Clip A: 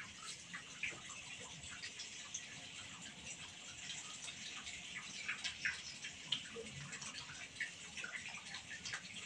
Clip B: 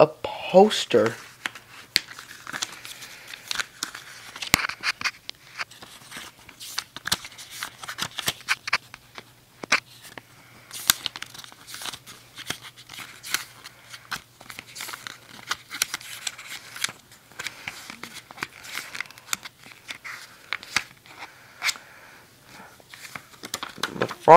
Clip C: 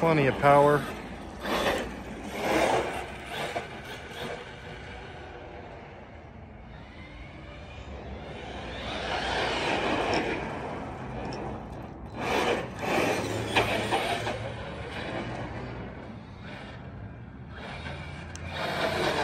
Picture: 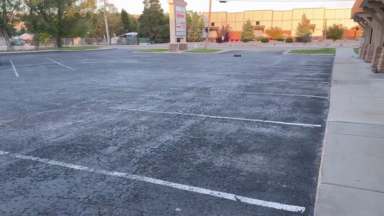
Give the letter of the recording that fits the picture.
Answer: C